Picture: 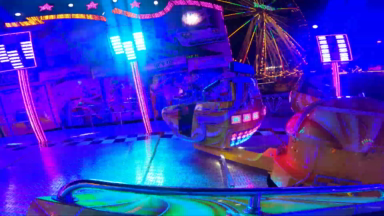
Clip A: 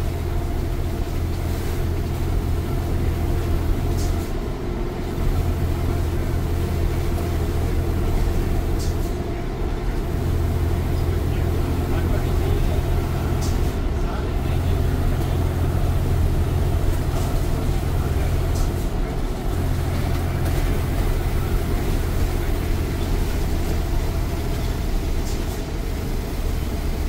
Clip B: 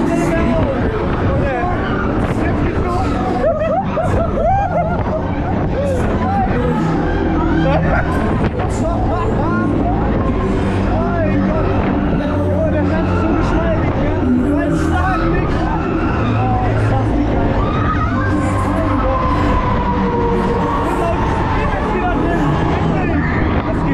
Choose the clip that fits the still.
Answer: B